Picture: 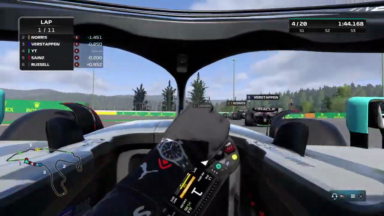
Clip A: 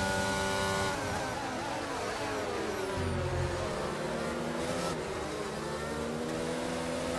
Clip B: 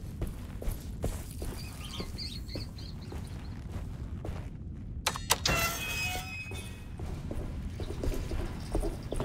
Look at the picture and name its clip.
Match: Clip A